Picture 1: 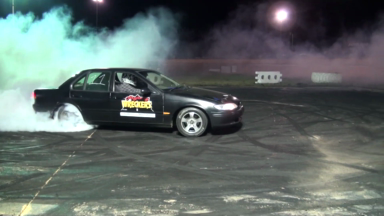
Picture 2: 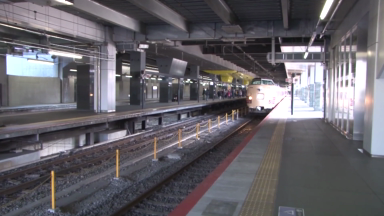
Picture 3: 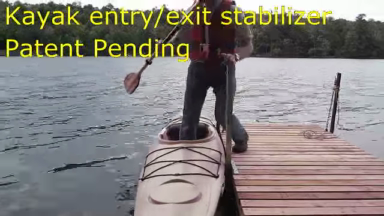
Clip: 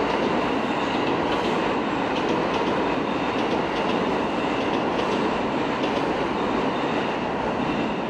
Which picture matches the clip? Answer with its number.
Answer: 2